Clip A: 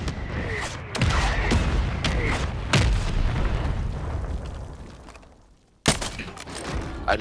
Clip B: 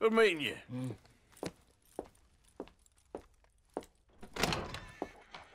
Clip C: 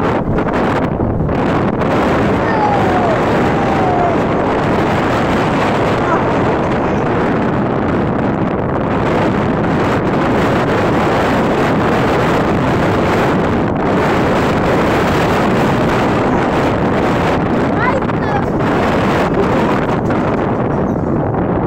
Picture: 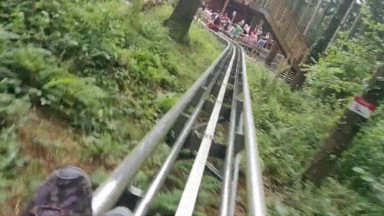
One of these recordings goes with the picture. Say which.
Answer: C